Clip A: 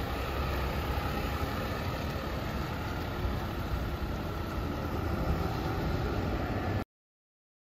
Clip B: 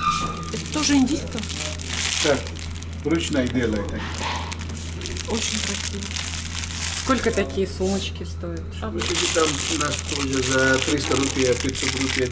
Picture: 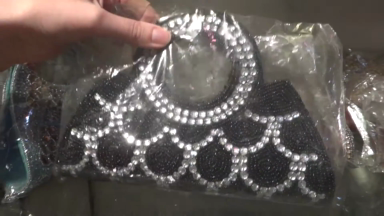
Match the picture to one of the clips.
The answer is B